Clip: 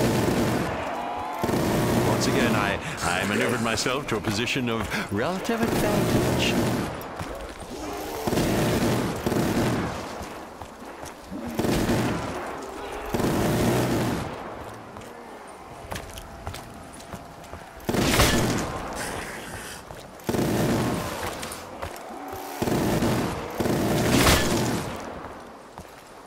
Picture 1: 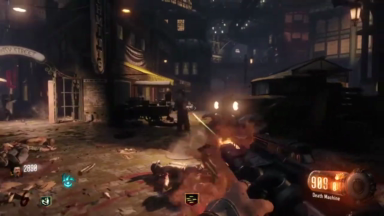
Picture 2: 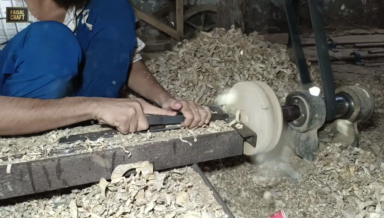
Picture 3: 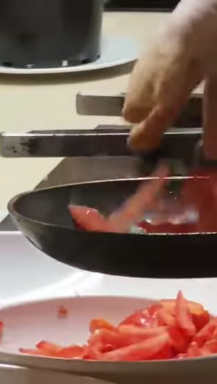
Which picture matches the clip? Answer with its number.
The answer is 1